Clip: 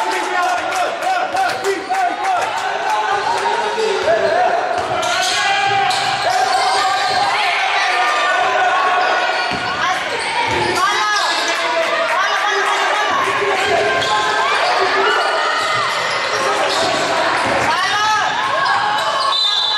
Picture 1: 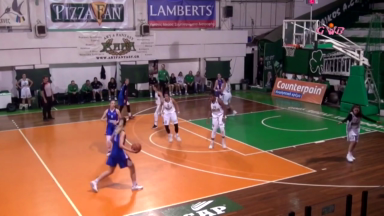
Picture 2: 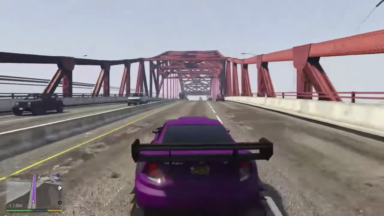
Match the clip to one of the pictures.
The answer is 1